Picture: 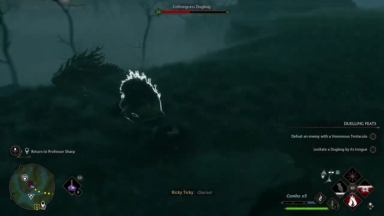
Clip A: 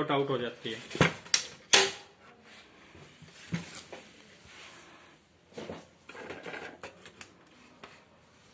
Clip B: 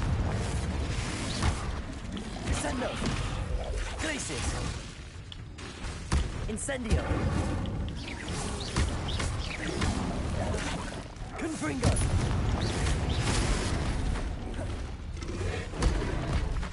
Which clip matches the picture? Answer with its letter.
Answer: B